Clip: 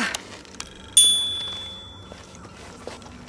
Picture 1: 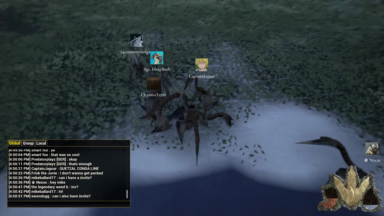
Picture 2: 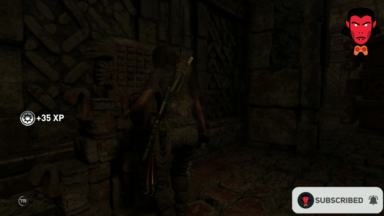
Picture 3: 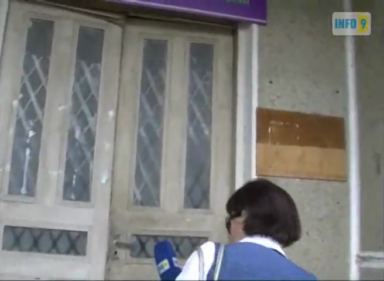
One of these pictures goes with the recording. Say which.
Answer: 2